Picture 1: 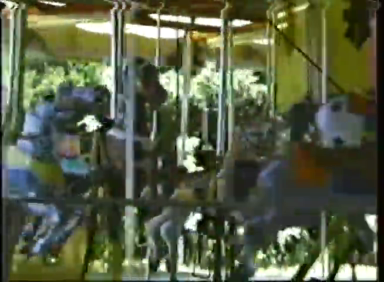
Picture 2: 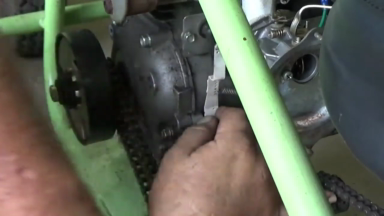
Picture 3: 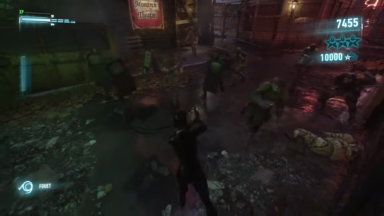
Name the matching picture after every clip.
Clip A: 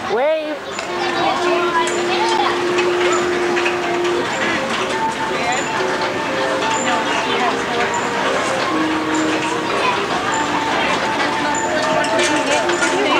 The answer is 1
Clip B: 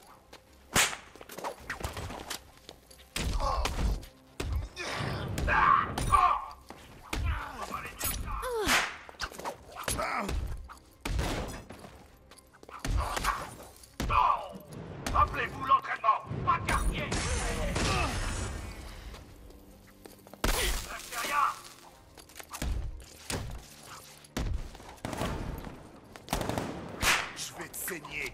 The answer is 3